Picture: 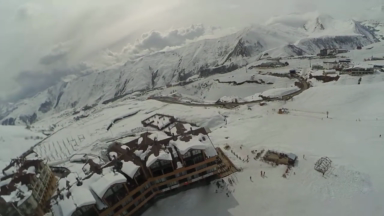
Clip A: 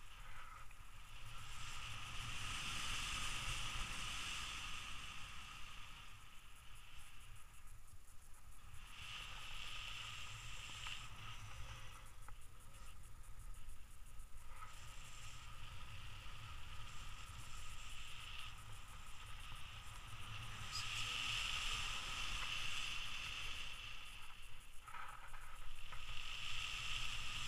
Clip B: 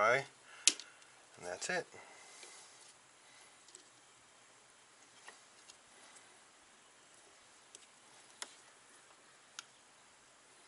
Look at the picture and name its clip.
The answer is A